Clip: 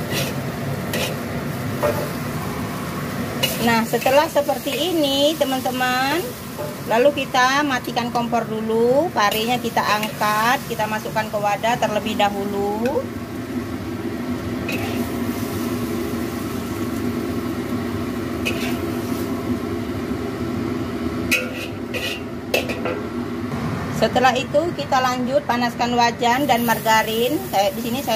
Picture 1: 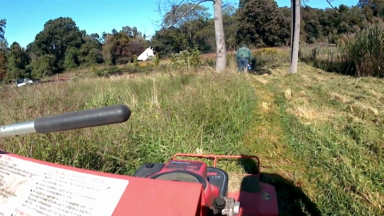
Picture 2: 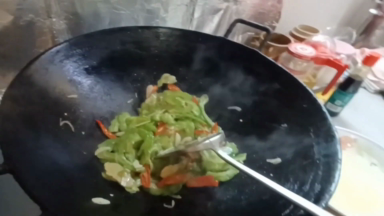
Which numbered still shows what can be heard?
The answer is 2